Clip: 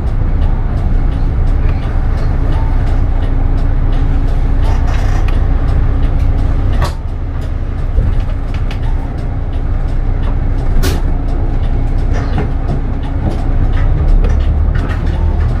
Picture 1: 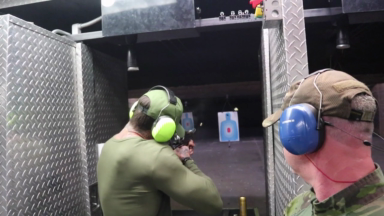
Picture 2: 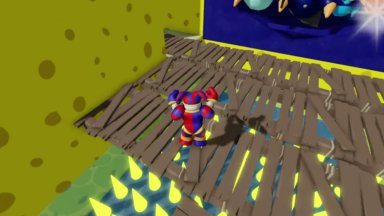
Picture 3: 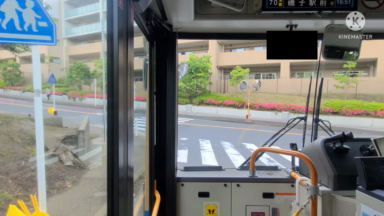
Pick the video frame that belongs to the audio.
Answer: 3